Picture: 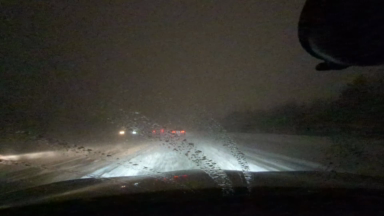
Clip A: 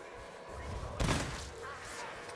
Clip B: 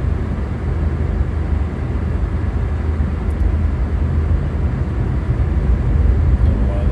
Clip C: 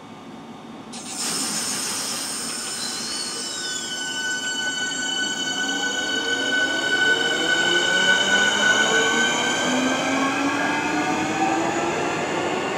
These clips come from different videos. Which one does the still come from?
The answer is B